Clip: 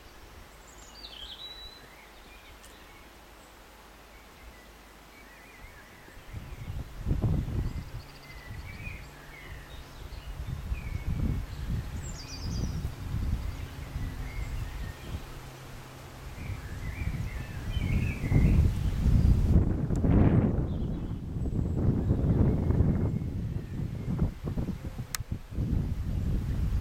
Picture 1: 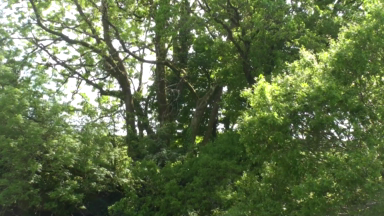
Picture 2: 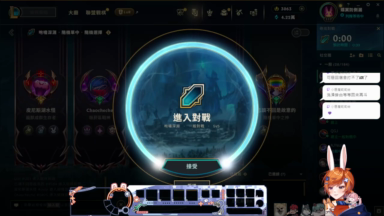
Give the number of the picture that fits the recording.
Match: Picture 1